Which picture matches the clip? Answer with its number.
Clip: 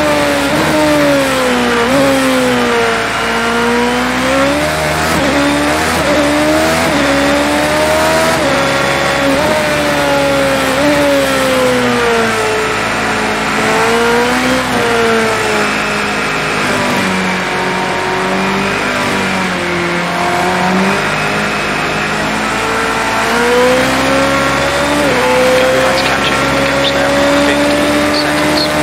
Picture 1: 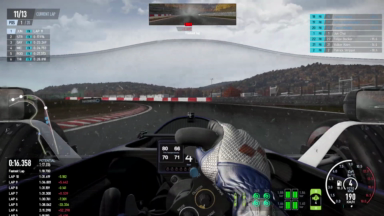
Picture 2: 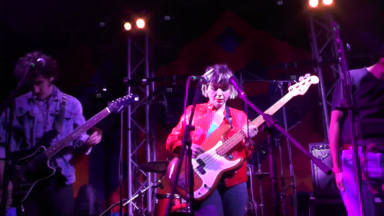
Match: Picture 1